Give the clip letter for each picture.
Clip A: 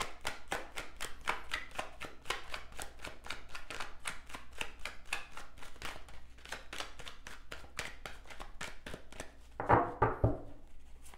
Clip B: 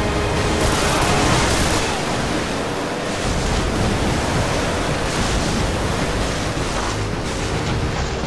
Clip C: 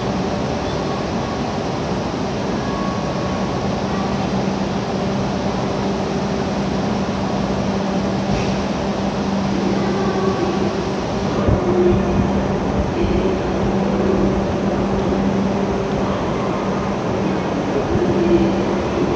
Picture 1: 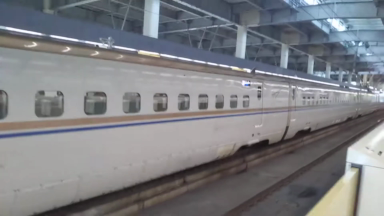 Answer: C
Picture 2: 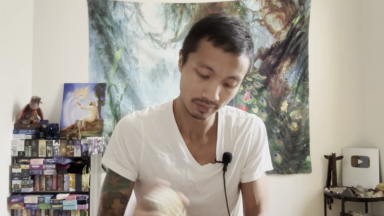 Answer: A